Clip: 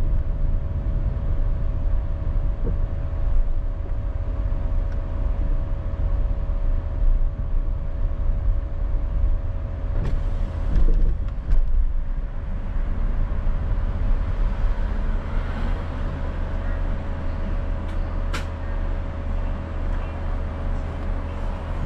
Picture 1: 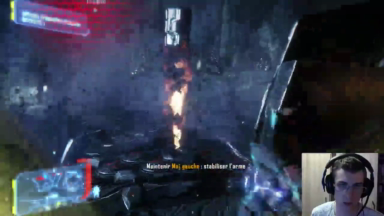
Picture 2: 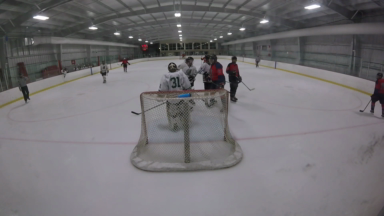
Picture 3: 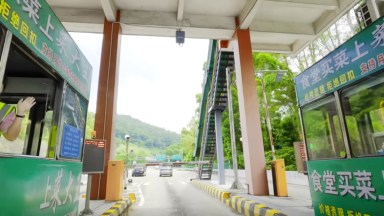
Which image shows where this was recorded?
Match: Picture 3